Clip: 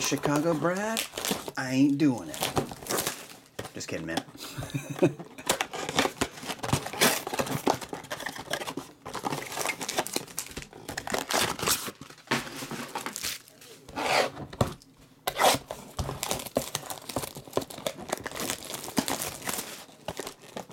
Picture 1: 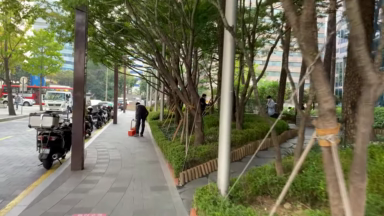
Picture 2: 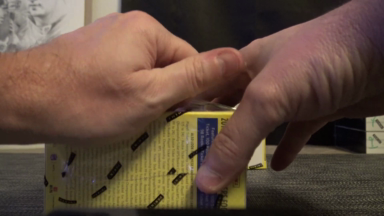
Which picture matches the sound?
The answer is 2